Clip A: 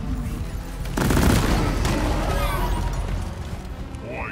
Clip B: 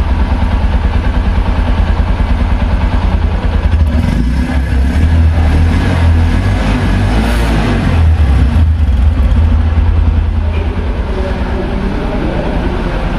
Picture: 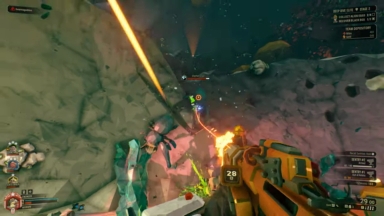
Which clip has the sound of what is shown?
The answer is A